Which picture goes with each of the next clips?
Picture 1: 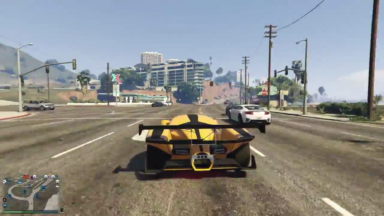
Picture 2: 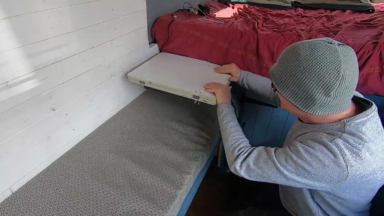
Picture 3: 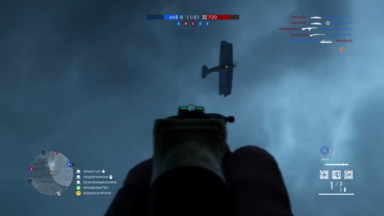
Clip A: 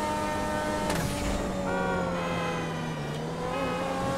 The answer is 1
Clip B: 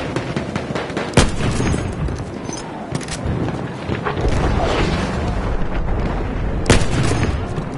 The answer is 3